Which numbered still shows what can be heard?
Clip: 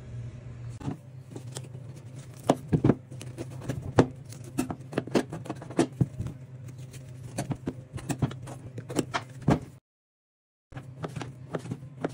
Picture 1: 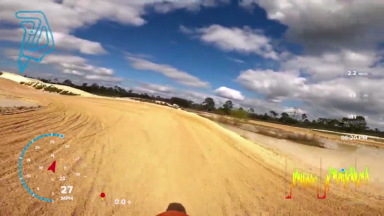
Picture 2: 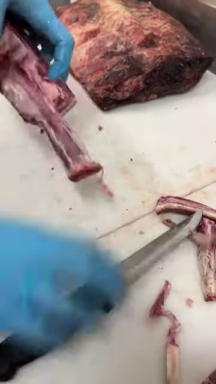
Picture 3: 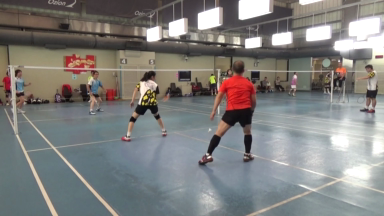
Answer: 2